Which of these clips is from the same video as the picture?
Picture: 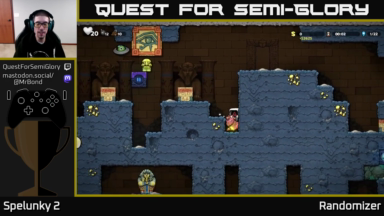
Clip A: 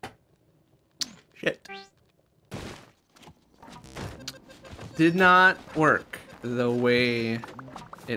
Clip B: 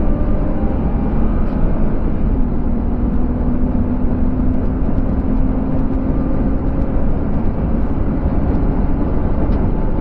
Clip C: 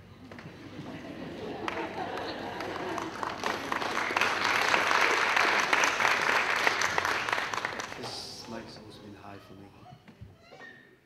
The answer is A